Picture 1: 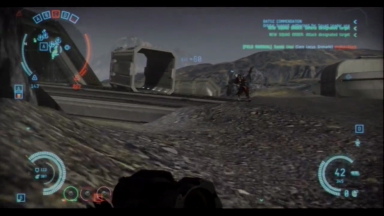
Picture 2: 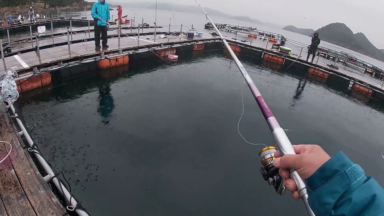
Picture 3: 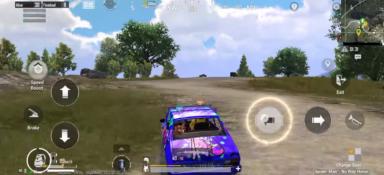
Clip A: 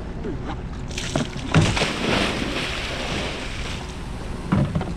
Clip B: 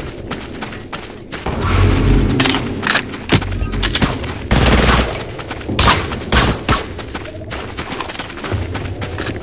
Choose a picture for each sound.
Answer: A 2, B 1